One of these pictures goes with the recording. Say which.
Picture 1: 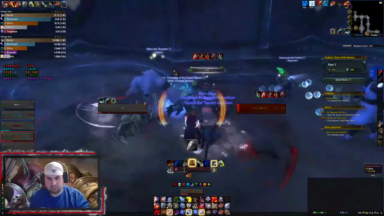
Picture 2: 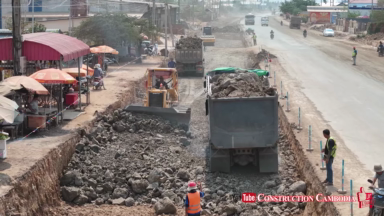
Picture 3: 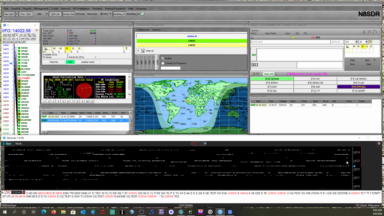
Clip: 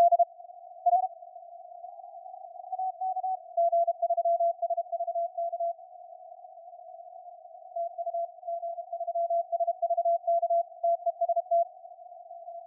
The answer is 3